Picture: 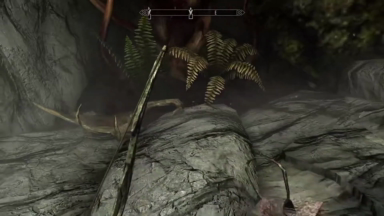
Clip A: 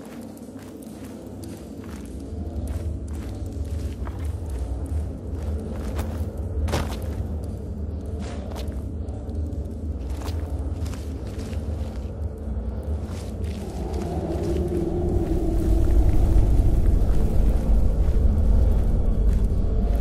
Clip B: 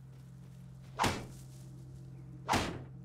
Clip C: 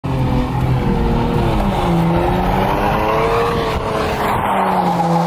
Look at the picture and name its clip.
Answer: A